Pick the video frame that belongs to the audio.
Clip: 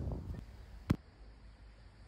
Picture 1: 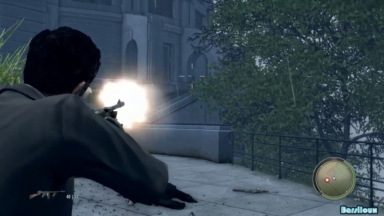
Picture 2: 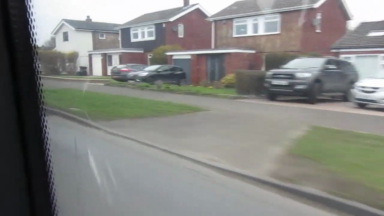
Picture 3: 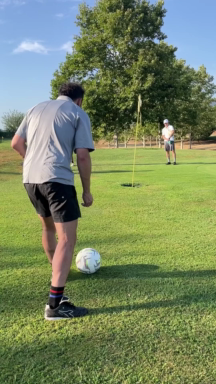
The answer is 3